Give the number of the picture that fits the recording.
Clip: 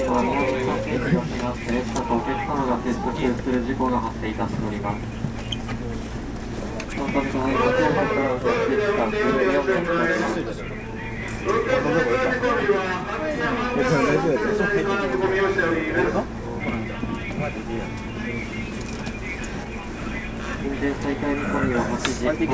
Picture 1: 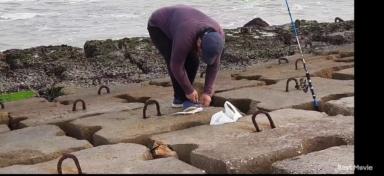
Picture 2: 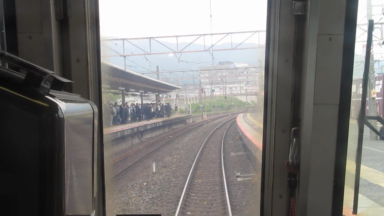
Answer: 2